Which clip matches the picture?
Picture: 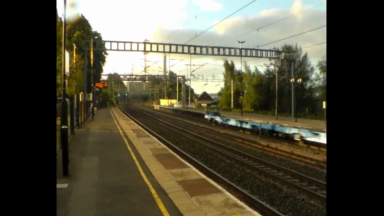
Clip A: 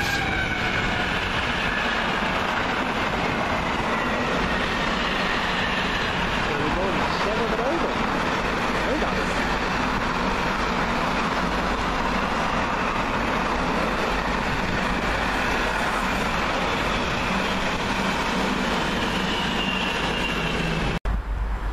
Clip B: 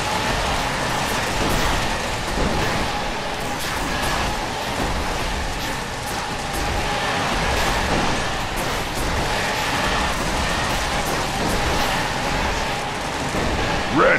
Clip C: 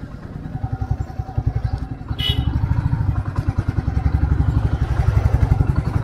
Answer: A